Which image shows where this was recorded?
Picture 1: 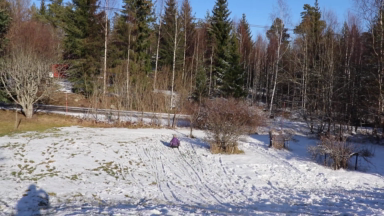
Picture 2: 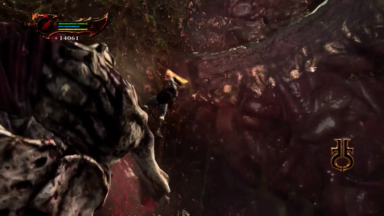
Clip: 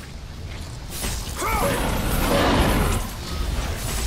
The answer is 2